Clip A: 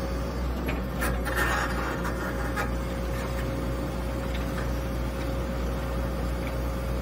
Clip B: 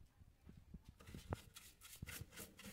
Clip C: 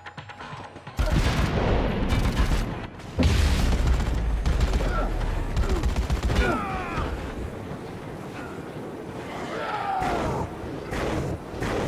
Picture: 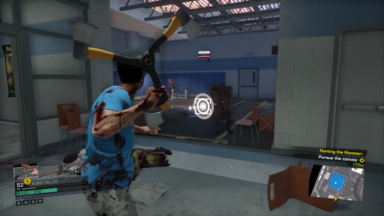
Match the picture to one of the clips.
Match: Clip C